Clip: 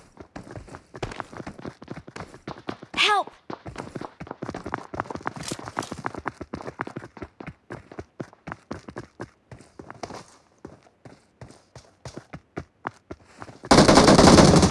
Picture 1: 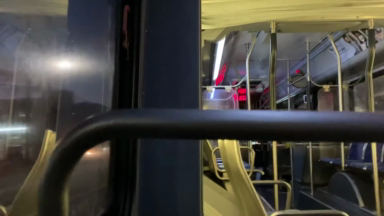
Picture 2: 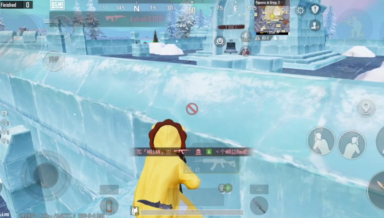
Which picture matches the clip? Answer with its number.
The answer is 2